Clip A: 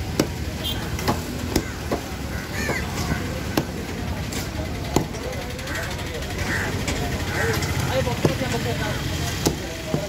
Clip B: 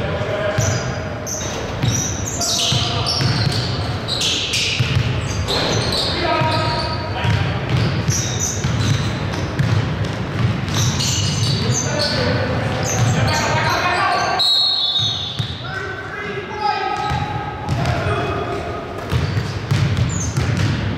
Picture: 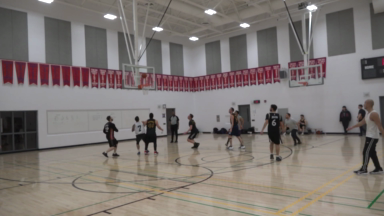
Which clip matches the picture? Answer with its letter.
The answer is B